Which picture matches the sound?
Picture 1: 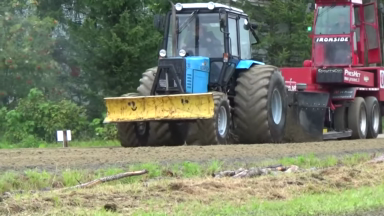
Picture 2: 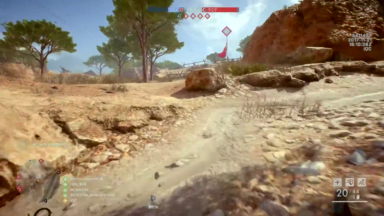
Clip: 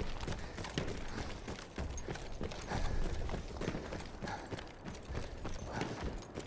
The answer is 2